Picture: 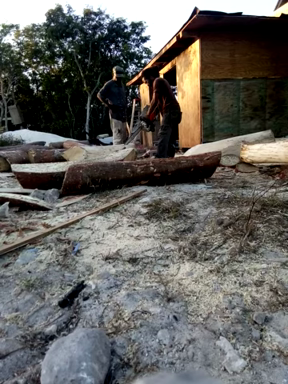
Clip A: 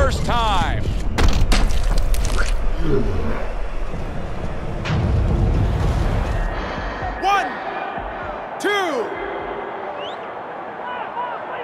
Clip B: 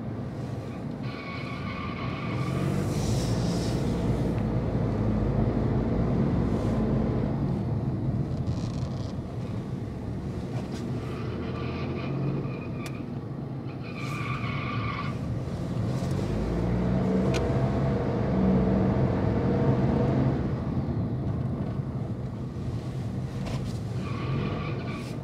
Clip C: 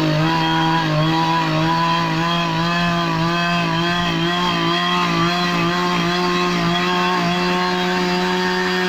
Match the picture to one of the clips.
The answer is C